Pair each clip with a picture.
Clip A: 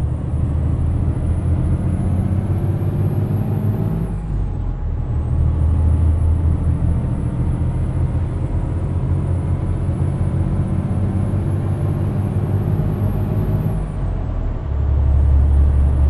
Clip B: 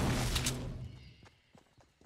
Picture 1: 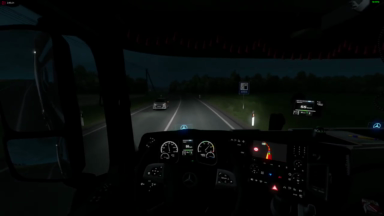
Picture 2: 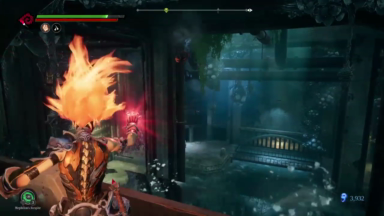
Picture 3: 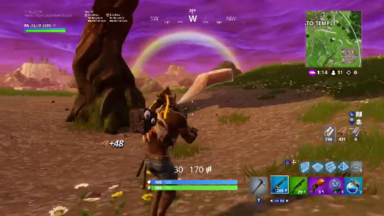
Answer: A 1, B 3